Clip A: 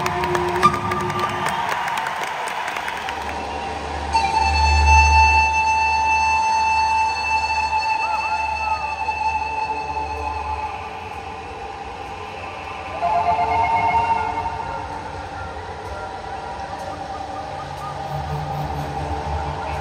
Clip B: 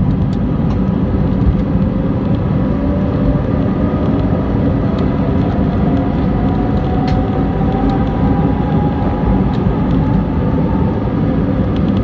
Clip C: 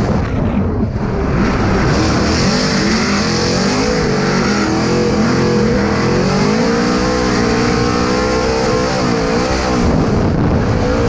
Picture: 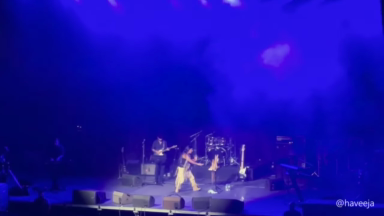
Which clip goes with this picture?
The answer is A